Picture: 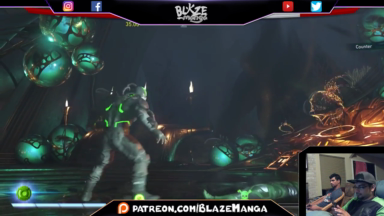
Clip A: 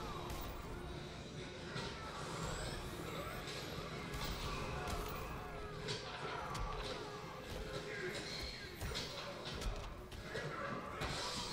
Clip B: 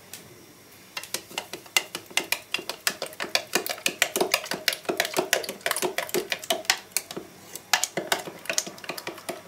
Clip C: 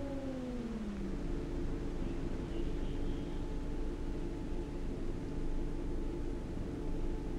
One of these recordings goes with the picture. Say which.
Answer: A